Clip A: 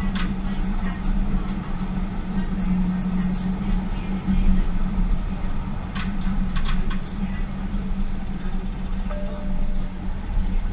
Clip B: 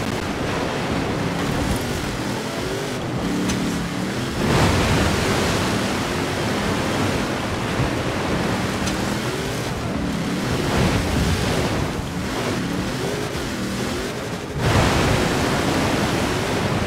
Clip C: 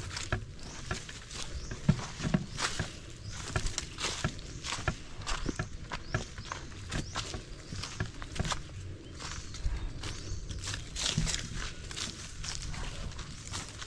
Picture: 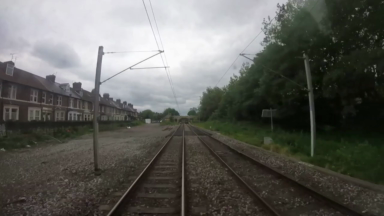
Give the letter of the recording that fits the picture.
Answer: A